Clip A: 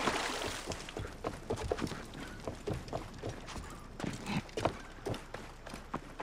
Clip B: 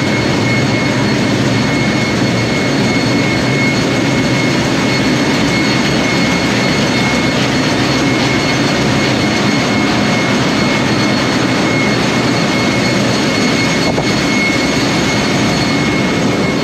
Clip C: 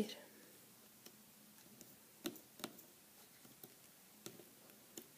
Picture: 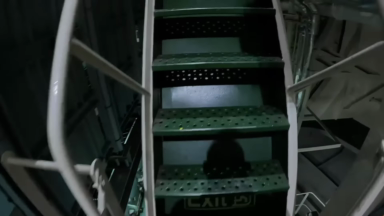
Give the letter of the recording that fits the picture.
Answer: B